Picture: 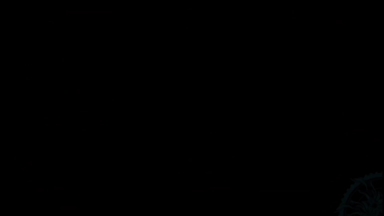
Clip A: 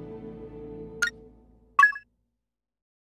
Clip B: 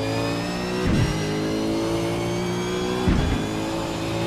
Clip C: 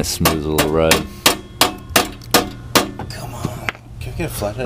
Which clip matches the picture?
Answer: A